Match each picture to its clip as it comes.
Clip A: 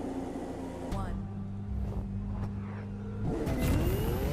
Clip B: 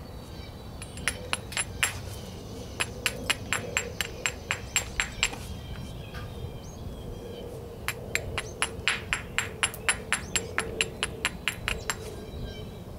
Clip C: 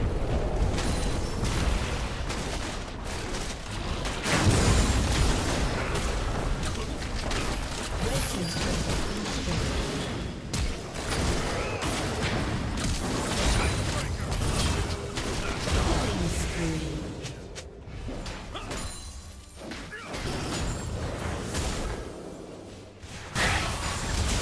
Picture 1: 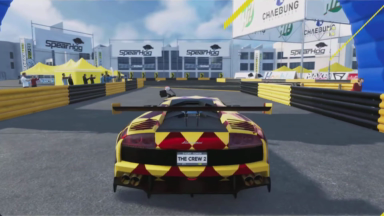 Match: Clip A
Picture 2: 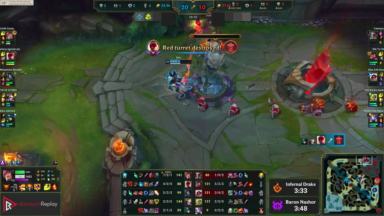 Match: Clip C